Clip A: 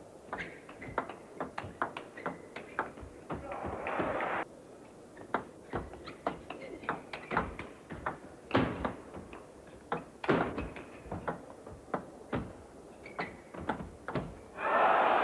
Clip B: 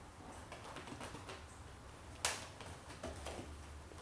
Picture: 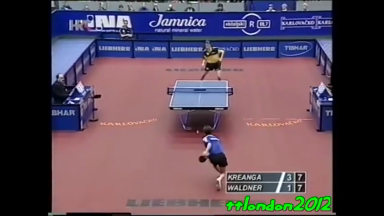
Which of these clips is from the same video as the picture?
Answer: A